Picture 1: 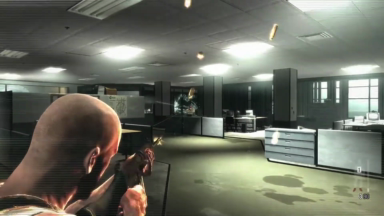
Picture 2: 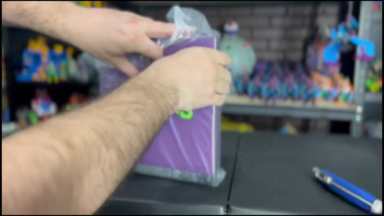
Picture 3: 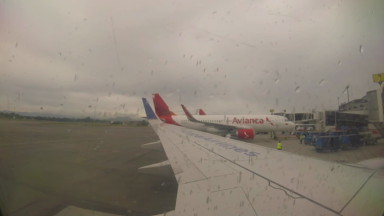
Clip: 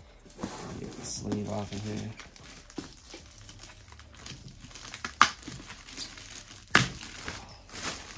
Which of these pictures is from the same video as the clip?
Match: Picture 2